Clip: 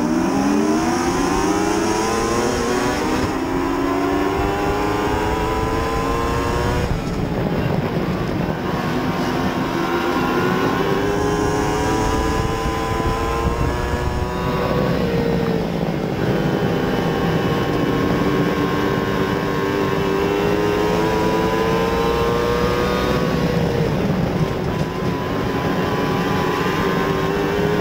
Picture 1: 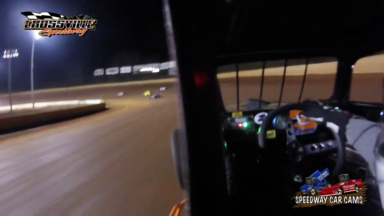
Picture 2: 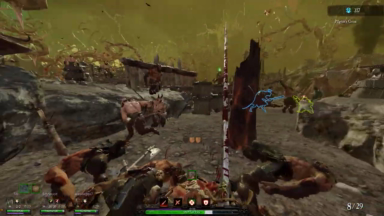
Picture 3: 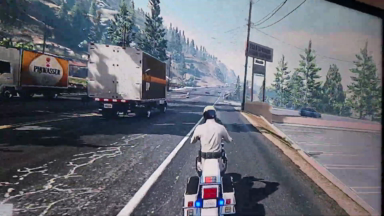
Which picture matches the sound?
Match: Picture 1